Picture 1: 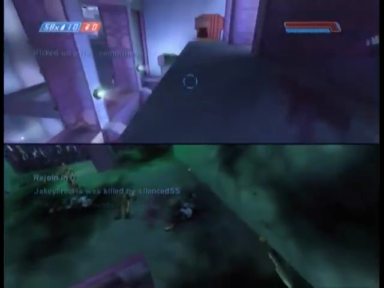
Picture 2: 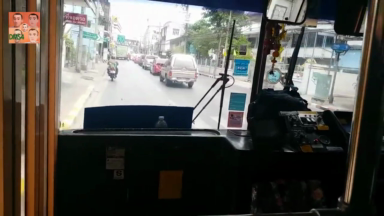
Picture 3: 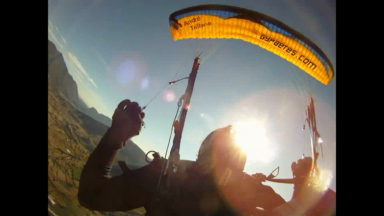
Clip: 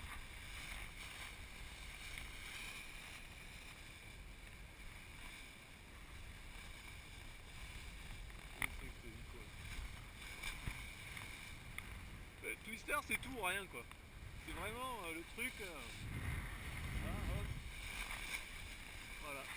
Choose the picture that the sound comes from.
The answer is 3